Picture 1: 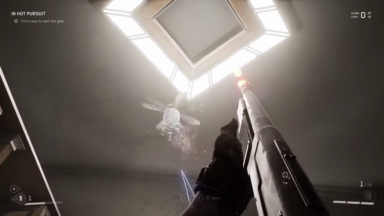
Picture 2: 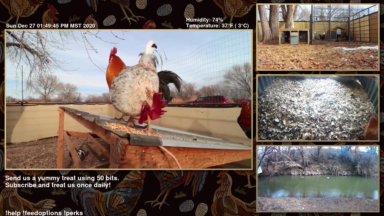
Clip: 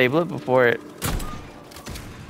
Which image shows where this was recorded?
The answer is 1